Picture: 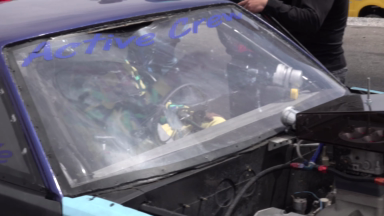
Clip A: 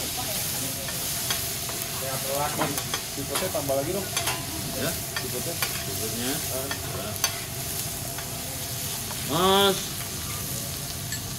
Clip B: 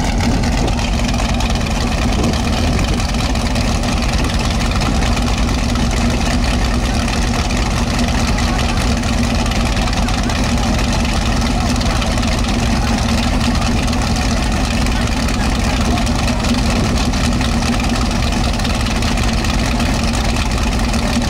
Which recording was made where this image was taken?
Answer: B